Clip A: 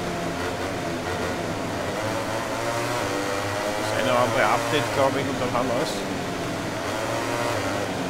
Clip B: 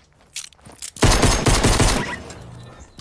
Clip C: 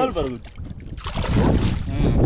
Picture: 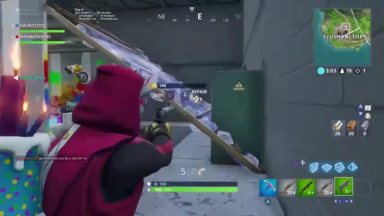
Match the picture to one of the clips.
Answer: B